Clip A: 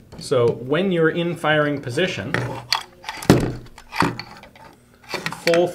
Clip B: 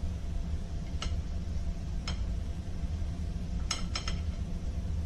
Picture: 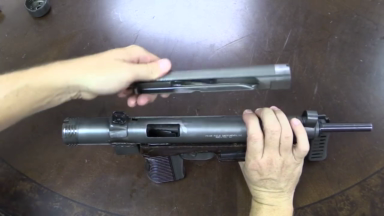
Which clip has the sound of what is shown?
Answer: A